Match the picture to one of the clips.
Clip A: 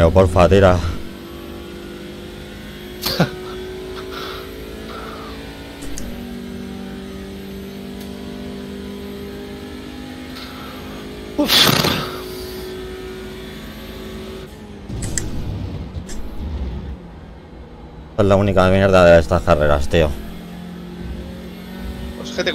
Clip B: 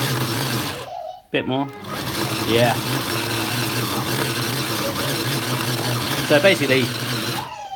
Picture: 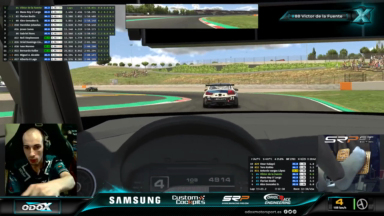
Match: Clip A